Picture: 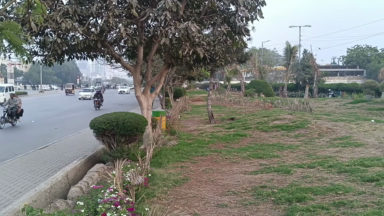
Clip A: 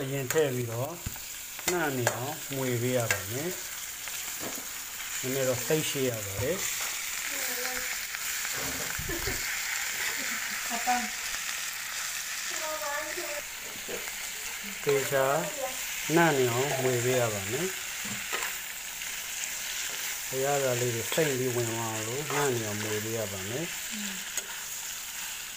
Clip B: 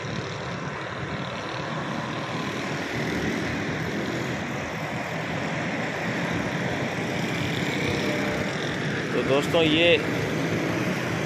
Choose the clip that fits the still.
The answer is B